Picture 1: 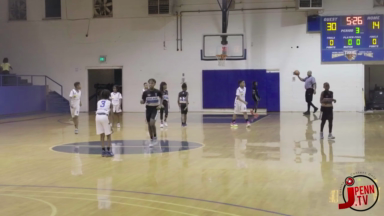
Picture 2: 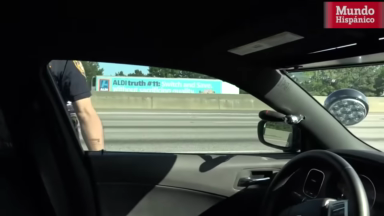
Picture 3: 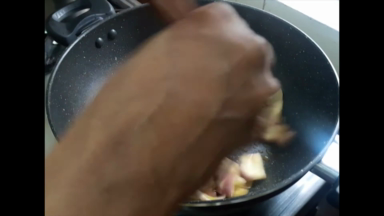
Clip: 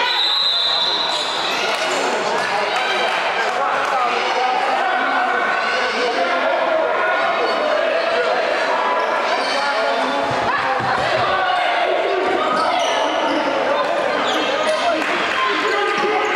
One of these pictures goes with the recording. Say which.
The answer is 1